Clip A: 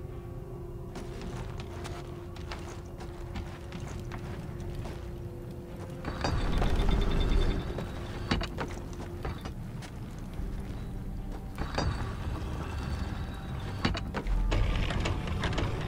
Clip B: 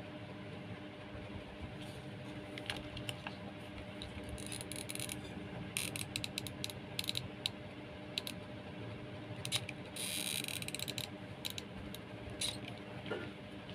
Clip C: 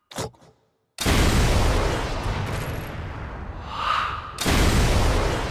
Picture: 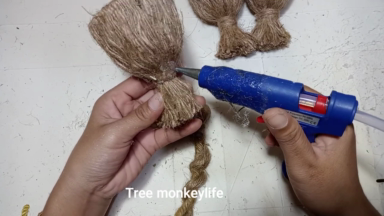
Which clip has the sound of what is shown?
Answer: B